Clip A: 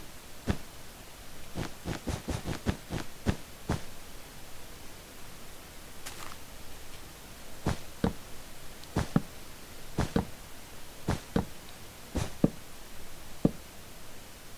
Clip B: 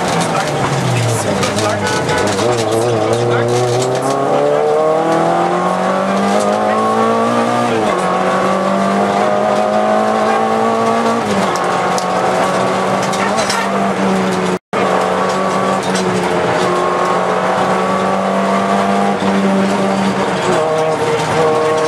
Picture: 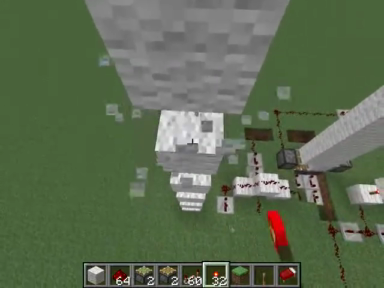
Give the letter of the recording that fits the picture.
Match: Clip A